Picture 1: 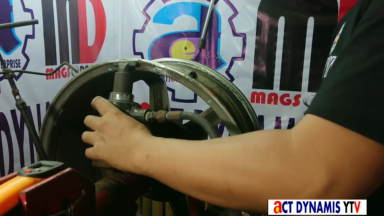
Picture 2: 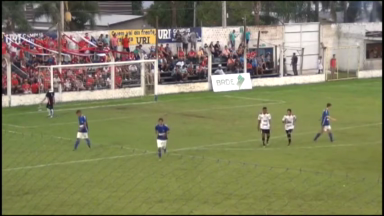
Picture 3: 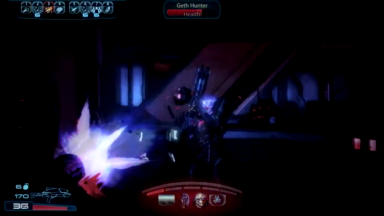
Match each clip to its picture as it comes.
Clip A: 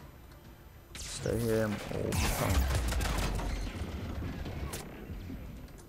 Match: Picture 3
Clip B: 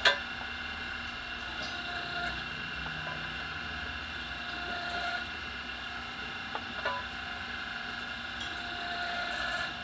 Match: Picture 1